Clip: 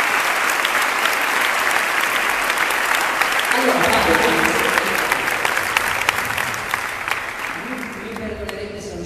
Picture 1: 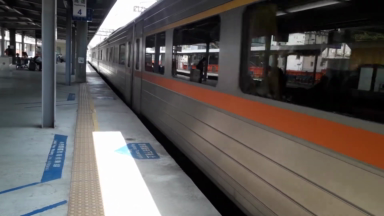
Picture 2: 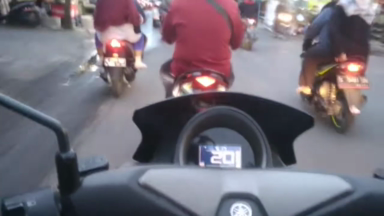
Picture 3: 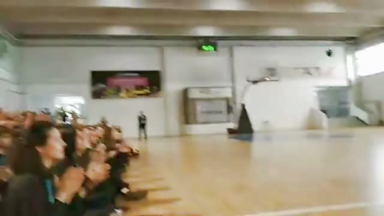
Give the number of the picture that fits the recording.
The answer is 3